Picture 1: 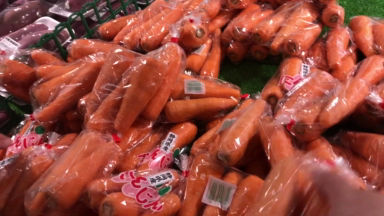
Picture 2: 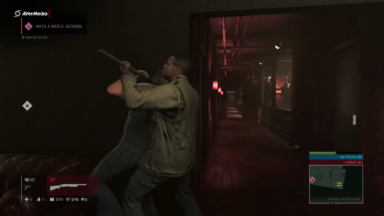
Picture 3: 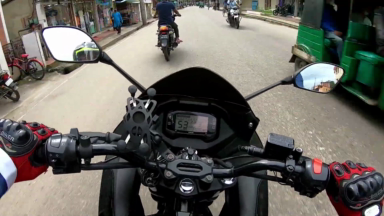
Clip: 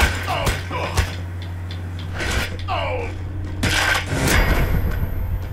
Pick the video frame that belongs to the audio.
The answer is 2